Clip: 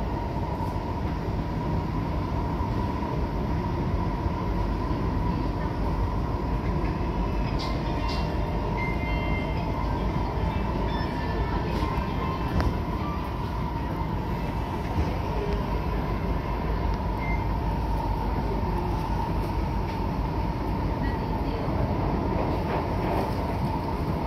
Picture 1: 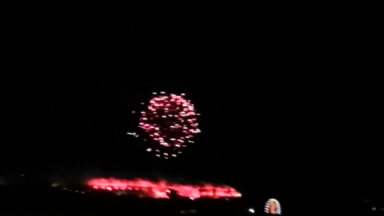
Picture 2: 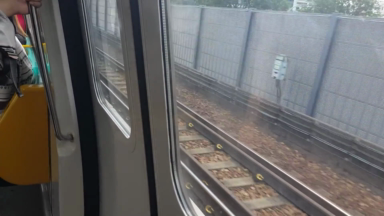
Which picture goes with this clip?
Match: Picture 2